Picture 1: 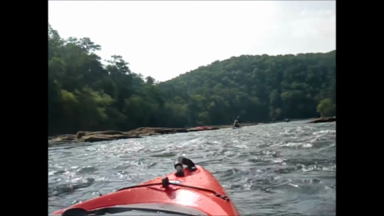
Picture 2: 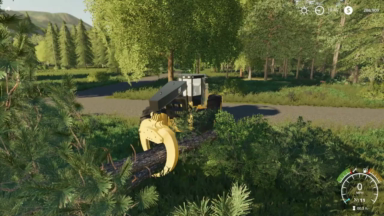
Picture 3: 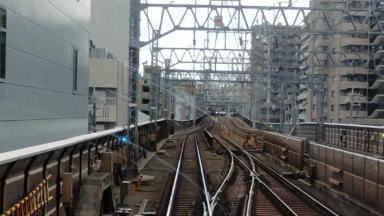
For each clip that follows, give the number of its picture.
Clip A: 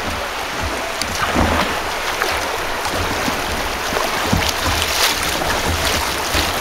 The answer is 1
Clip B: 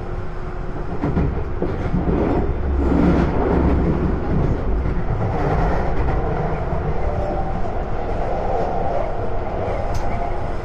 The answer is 3